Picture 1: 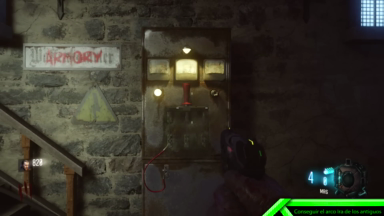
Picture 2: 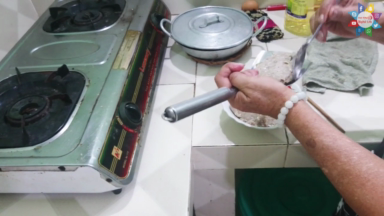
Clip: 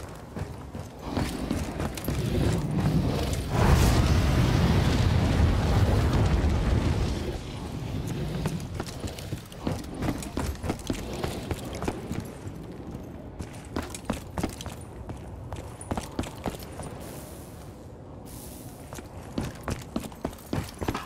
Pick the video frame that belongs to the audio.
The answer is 1